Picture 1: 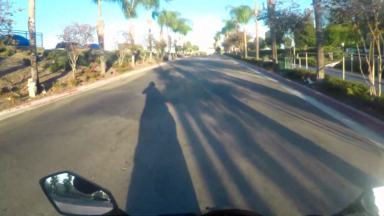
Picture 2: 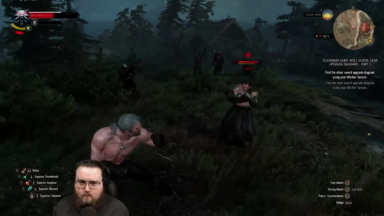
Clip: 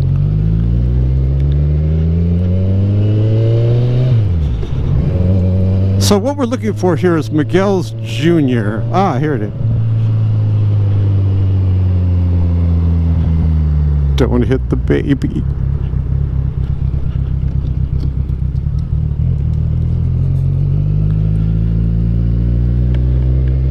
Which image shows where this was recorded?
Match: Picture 1